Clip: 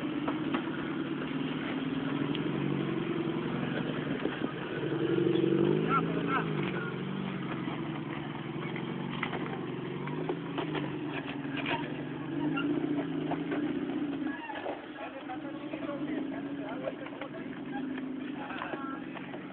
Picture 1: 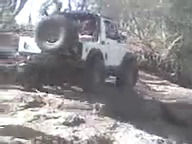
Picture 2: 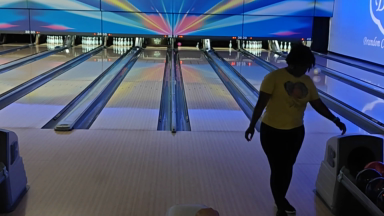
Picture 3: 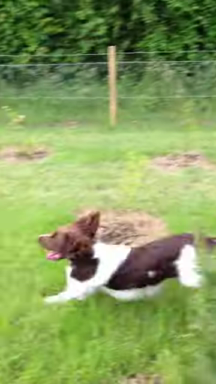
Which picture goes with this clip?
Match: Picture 1